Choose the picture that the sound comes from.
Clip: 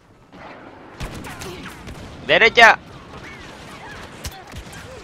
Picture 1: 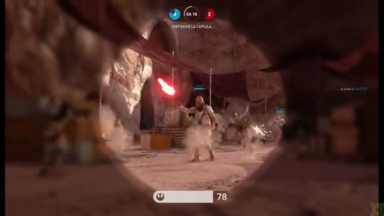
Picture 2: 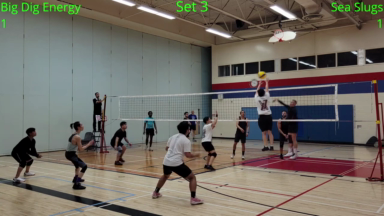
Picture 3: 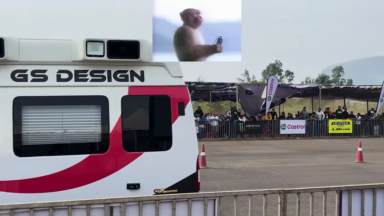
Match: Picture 1